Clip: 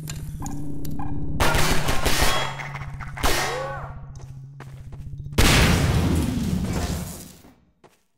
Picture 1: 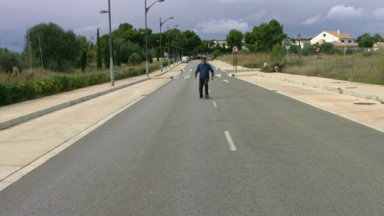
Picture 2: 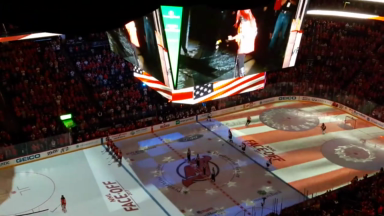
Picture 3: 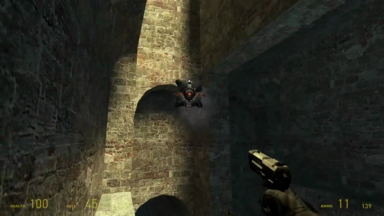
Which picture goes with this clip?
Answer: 3